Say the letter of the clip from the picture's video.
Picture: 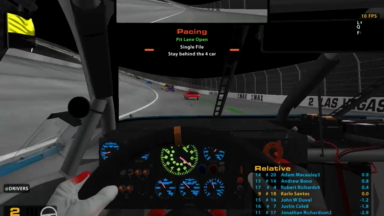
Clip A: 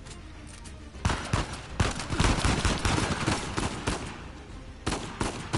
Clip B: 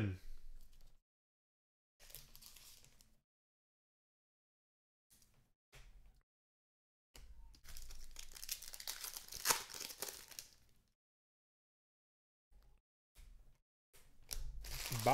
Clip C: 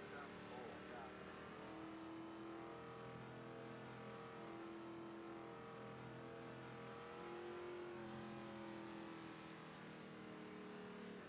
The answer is C